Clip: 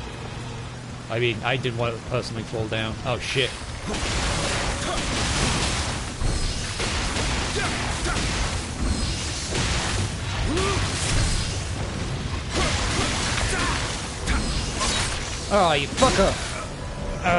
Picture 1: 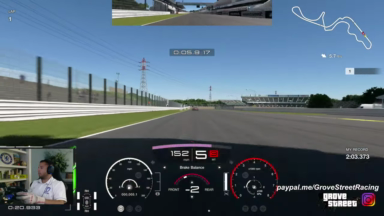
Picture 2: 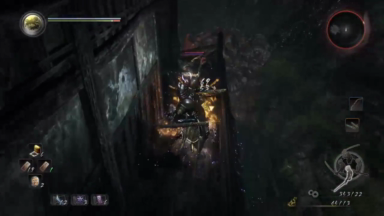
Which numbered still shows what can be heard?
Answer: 2